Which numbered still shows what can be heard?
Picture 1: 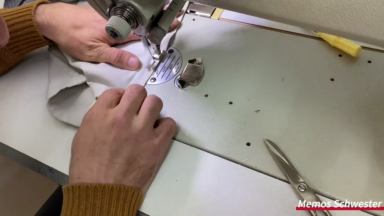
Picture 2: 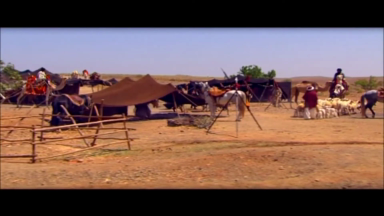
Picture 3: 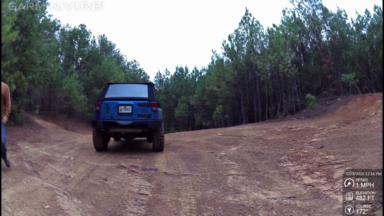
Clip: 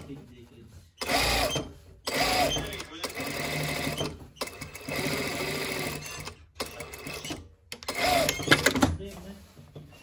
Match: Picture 1